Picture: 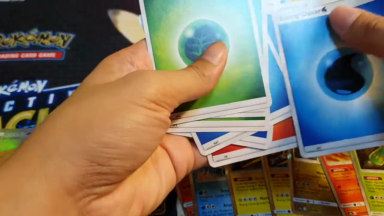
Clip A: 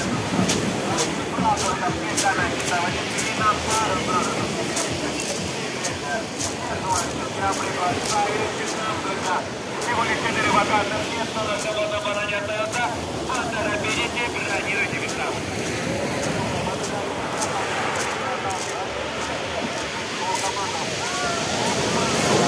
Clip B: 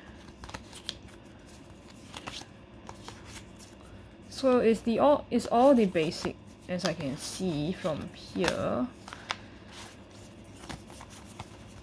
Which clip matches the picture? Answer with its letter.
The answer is B